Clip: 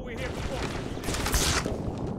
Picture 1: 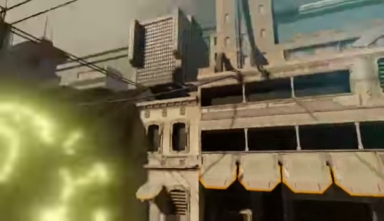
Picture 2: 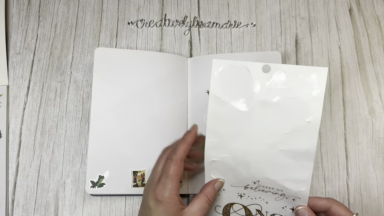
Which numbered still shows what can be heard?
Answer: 1